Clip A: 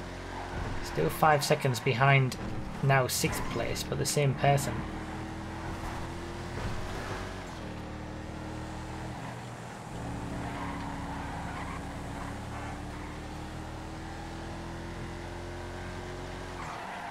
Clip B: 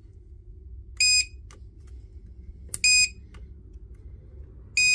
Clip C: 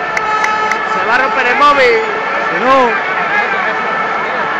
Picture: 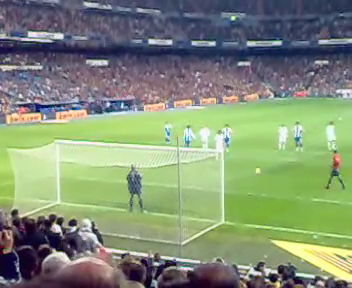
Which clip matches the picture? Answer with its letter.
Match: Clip C